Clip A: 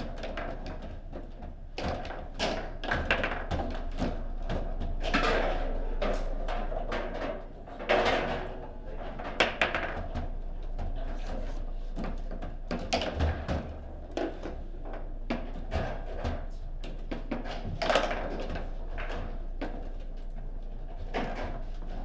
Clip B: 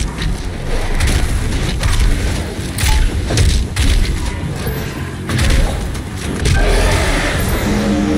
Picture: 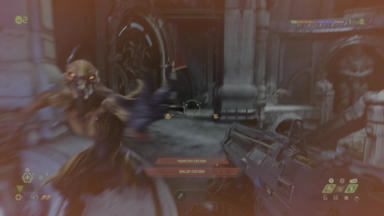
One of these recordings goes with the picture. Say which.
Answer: B